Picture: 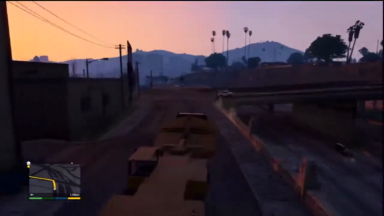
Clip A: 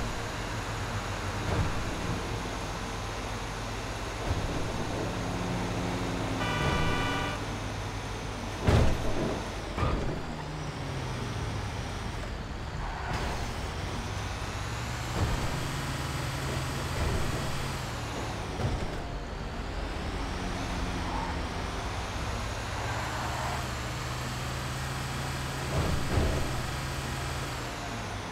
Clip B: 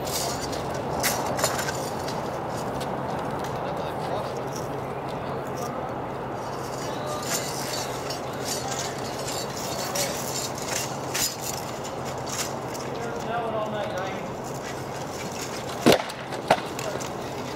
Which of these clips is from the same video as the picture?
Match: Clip A